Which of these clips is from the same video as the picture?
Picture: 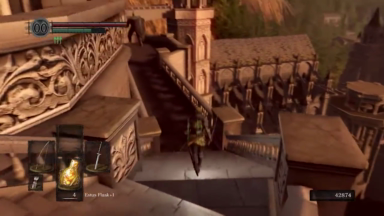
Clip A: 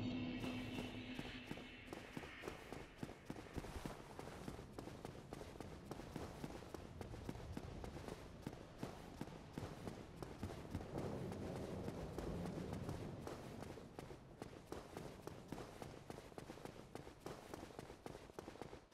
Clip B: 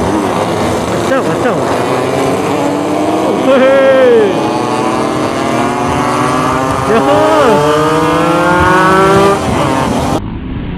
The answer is A